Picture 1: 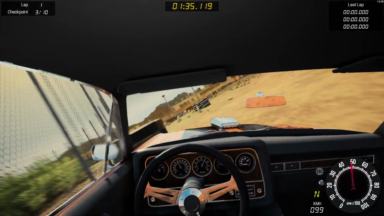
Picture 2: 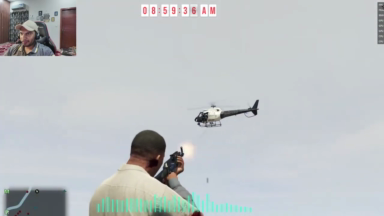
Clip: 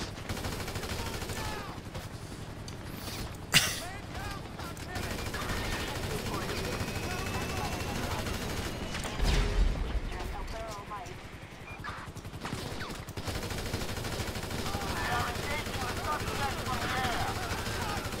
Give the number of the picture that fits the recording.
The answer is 2